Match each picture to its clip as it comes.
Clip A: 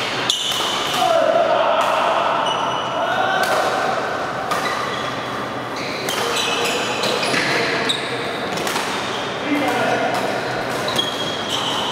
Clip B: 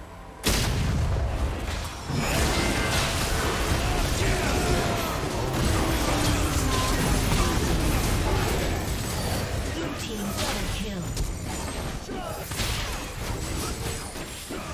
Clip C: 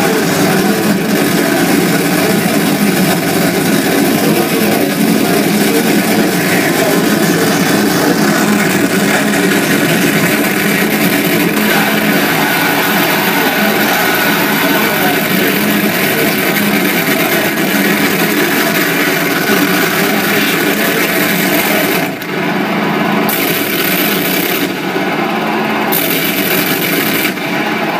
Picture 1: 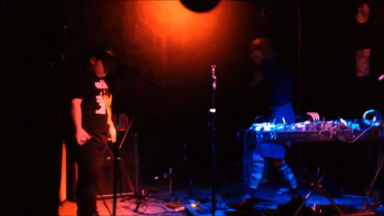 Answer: C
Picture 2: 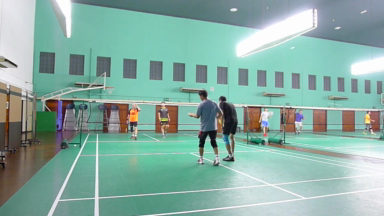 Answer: A